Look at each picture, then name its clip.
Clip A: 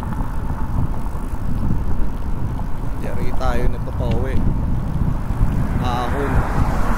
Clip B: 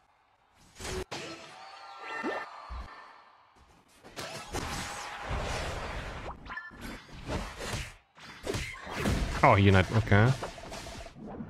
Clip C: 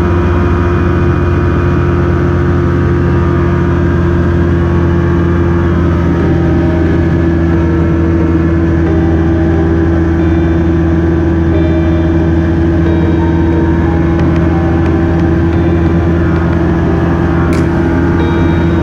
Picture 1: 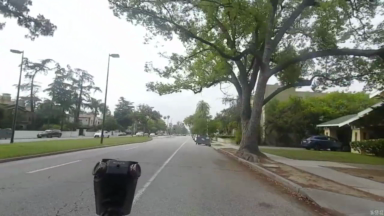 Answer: A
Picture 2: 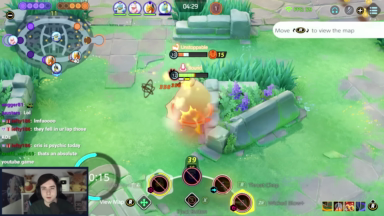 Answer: B